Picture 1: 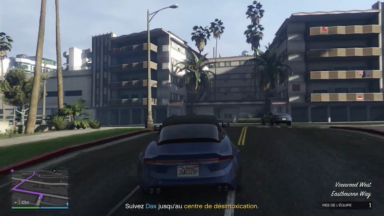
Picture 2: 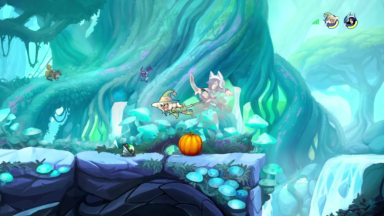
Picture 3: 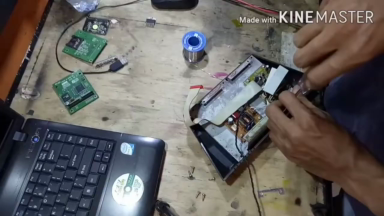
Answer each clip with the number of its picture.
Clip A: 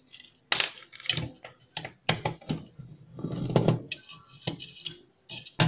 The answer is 3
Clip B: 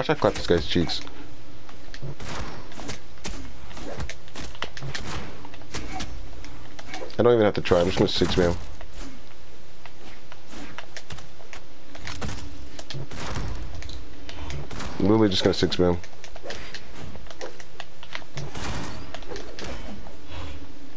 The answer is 2